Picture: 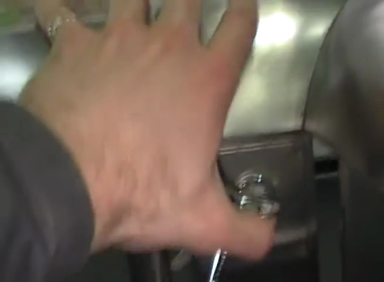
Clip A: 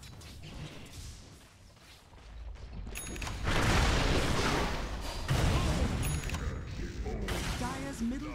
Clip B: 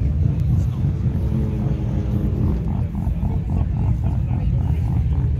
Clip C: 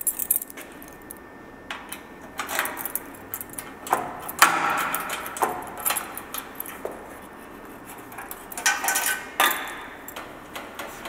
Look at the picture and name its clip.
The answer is C